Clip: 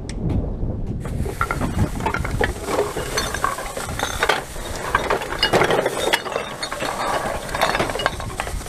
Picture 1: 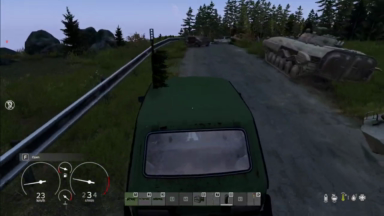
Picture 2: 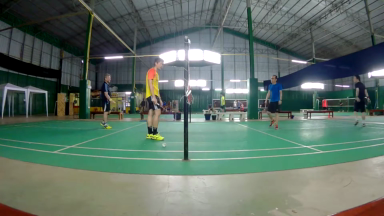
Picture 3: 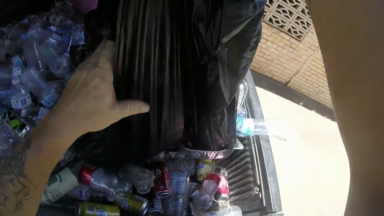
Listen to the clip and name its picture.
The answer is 3